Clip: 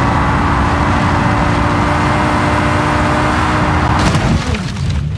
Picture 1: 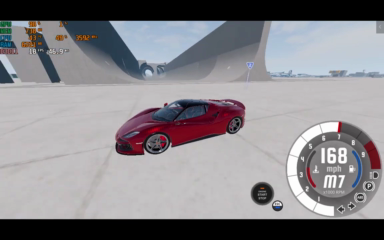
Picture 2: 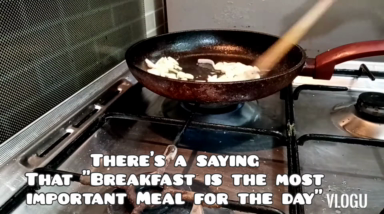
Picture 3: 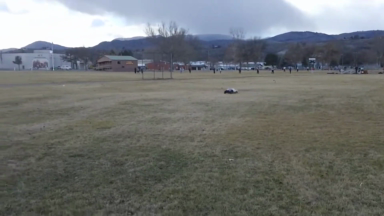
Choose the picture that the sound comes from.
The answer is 1